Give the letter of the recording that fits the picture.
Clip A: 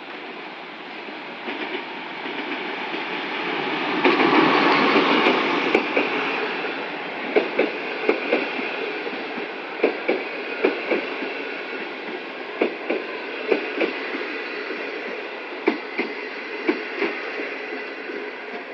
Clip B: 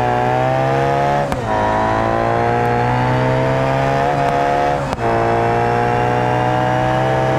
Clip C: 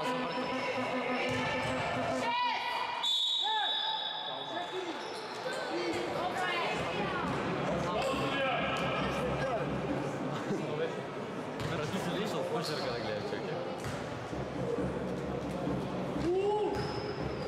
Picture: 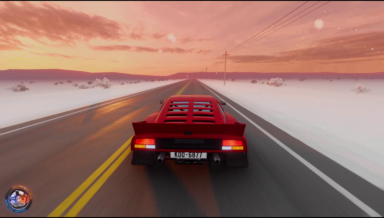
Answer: B